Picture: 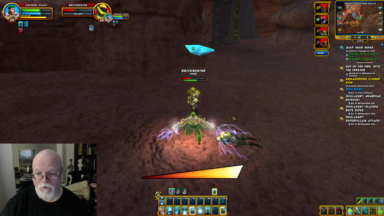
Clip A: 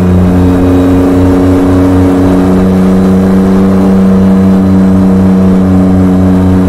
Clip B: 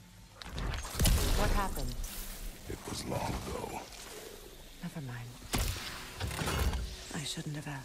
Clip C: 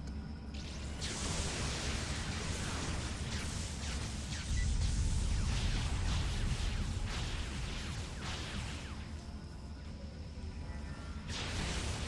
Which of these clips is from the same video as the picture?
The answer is C